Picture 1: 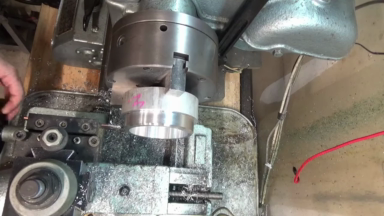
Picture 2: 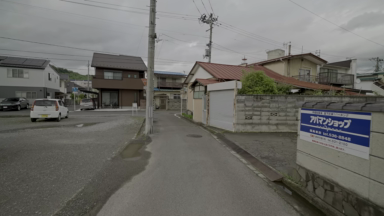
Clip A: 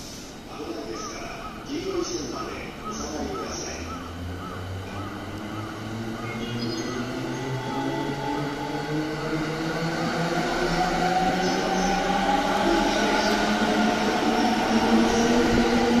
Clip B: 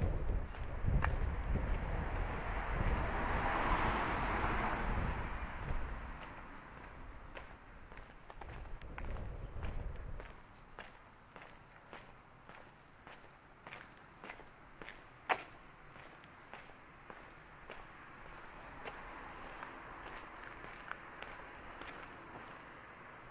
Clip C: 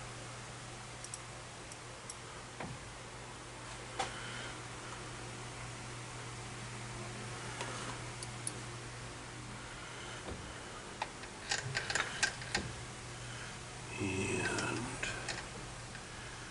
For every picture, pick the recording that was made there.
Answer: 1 C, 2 B